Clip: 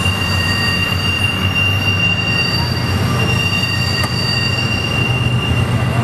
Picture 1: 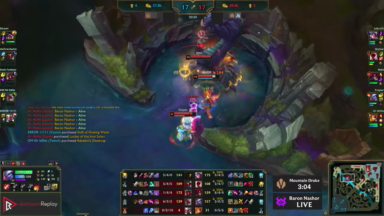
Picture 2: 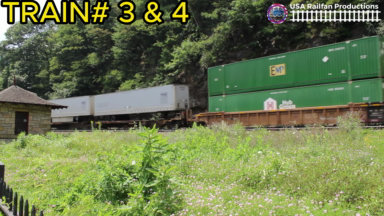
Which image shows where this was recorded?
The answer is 2